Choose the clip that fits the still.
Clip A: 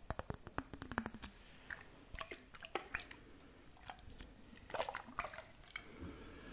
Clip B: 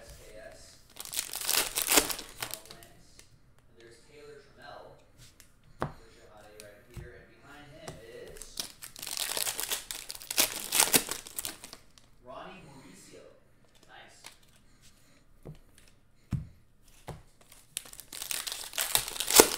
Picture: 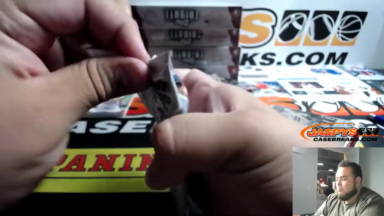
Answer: B